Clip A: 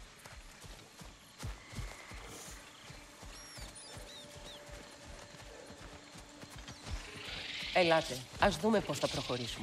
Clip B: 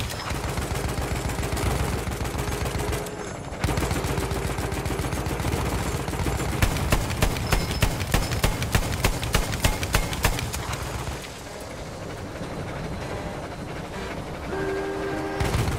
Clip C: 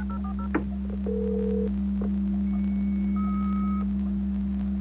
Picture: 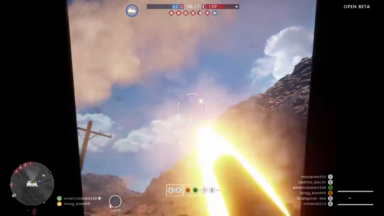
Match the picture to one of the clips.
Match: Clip B